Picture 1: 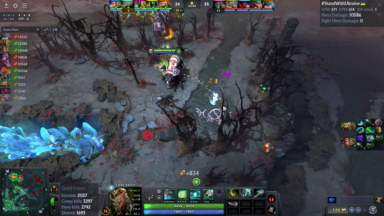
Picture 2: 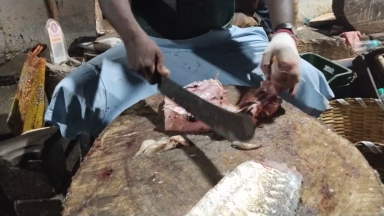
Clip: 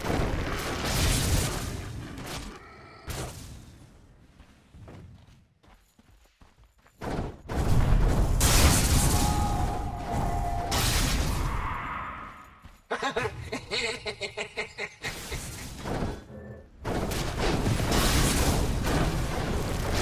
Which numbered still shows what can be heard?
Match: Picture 1